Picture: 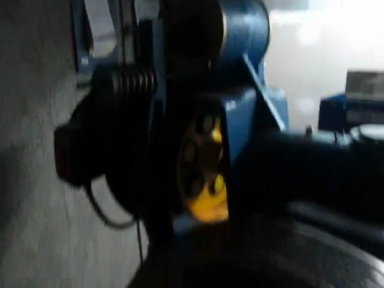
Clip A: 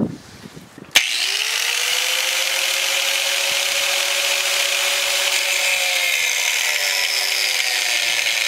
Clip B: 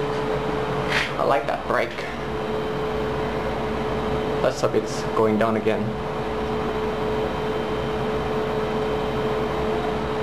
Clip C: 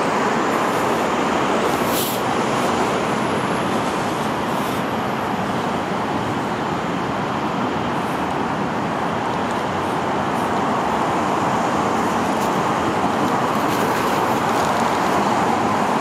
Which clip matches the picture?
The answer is B